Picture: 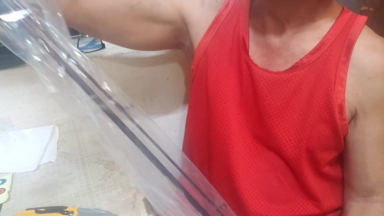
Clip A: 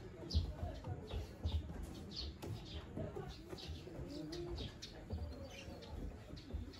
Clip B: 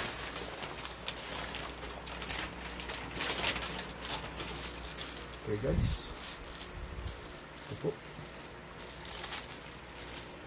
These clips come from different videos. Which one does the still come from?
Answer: B